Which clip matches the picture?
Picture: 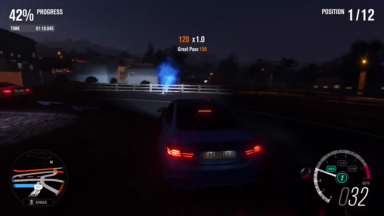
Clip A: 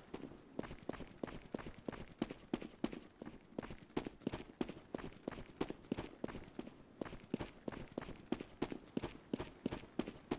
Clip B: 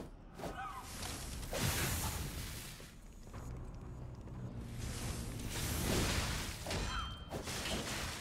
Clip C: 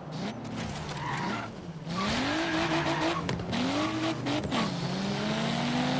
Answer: C